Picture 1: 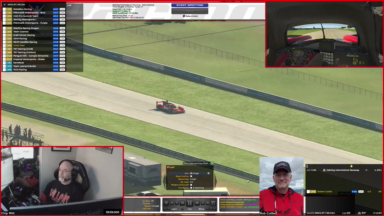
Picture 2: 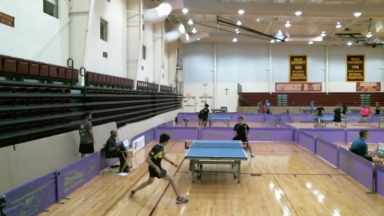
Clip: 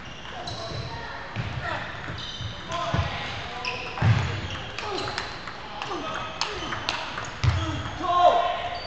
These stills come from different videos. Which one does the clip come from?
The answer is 2